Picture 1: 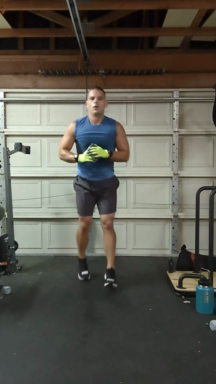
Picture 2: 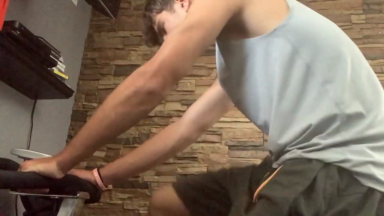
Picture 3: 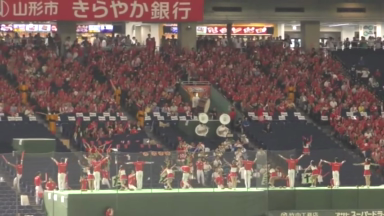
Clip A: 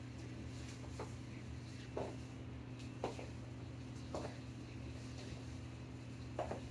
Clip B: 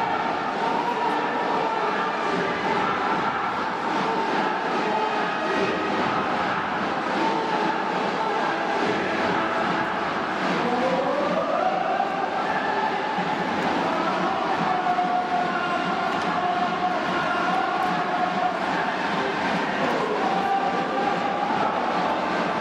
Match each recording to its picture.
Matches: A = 1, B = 3